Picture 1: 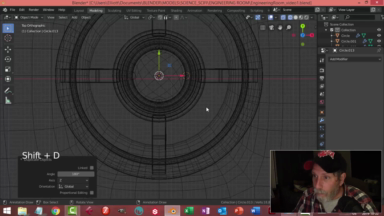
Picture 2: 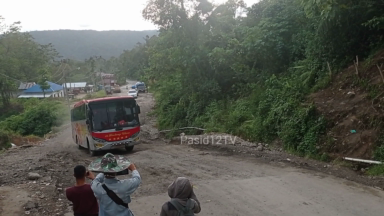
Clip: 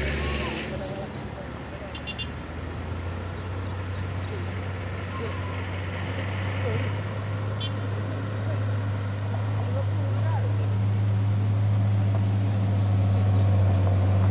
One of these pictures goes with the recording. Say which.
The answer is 2